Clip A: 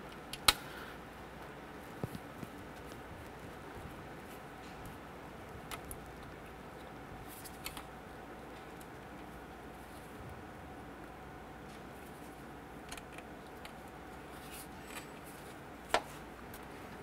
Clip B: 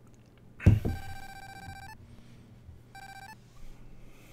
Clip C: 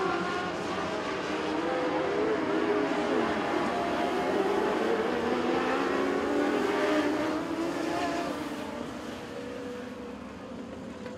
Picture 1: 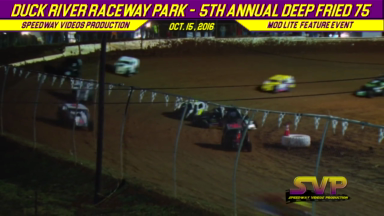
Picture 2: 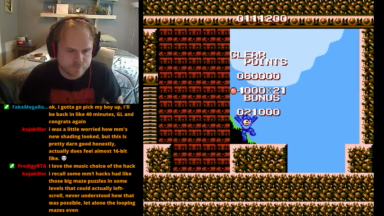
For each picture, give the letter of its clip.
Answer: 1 C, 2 B